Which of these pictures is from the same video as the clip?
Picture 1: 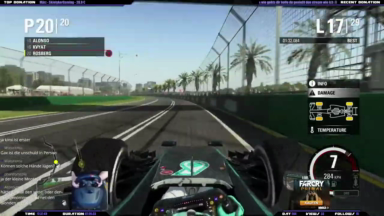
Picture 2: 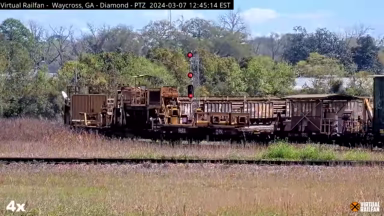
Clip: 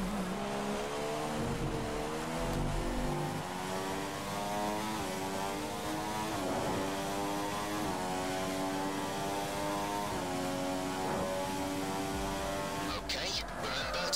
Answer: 1